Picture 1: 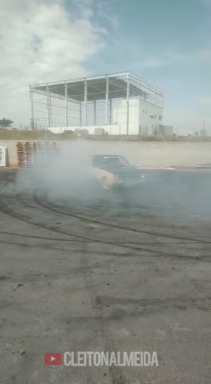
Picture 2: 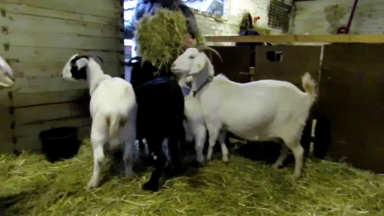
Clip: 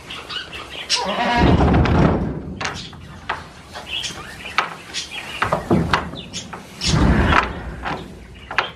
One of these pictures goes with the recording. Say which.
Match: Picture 2